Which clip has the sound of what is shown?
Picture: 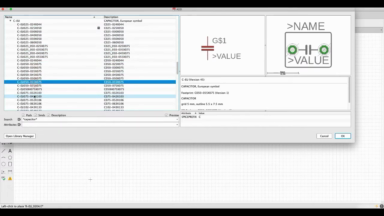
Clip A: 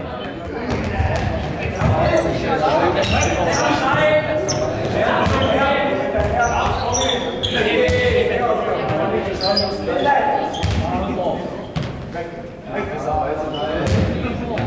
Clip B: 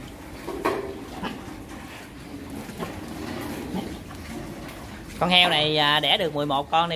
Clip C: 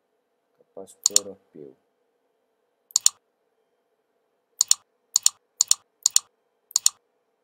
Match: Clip C